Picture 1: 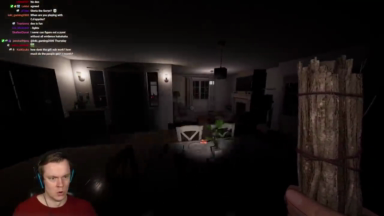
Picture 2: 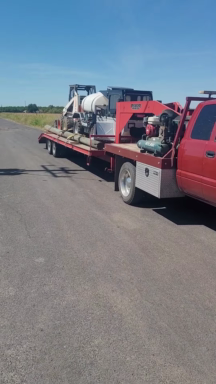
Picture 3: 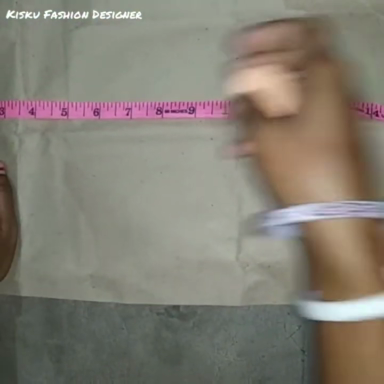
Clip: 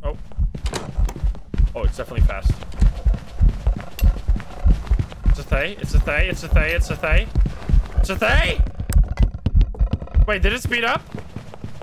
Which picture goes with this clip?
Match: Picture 1